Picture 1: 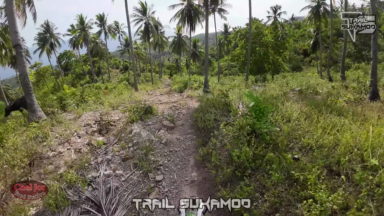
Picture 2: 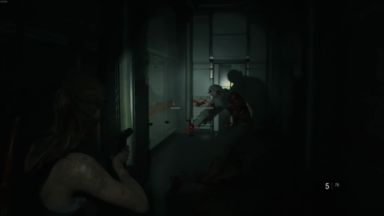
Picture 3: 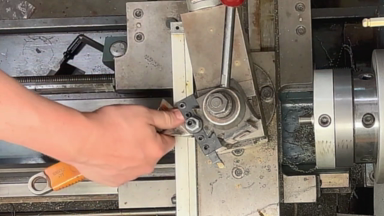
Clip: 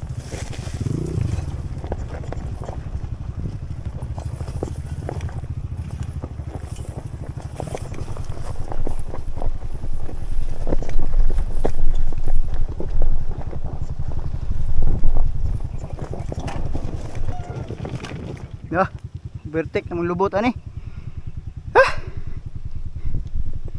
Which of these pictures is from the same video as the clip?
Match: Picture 1